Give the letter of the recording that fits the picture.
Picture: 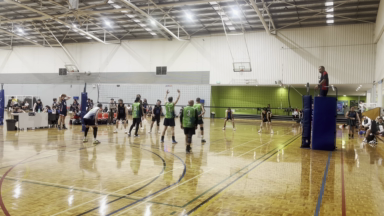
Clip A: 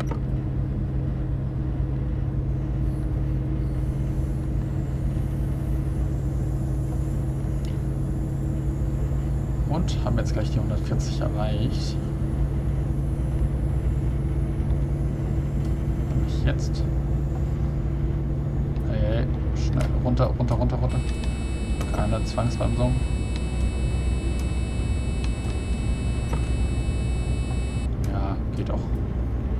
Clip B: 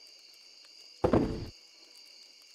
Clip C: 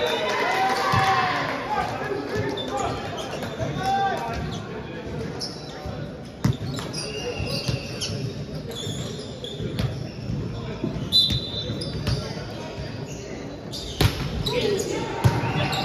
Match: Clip C